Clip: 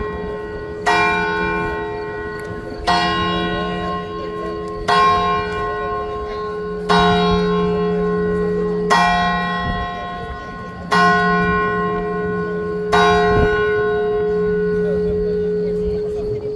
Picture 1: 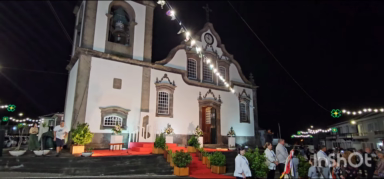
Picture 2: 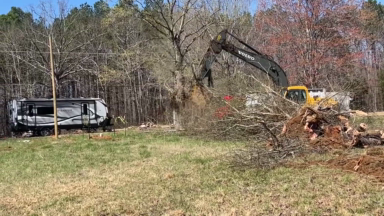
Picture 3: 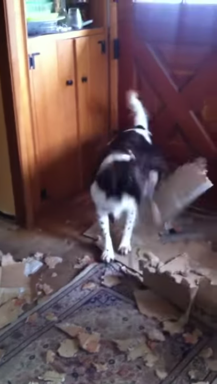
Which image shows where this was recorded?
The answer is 1